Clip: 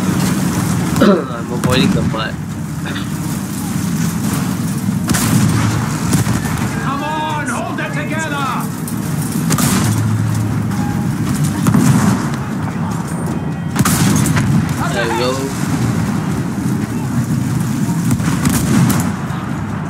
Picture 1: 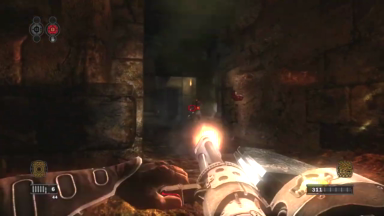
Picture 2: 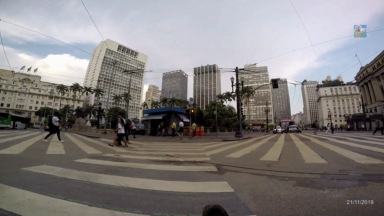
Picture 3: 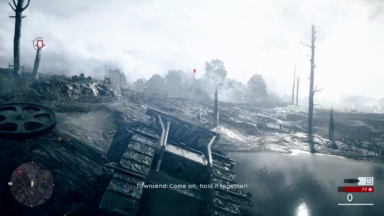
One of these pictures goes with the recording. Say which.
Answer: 3